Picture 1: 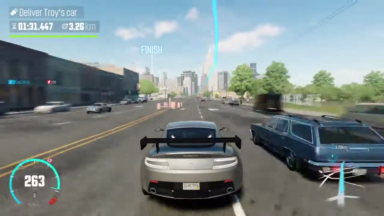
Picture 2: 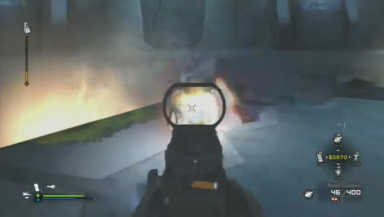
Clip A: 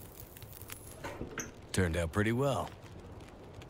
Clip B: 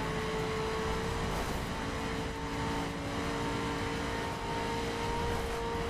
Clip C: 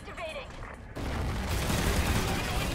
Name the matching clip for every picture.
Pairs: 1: B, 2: C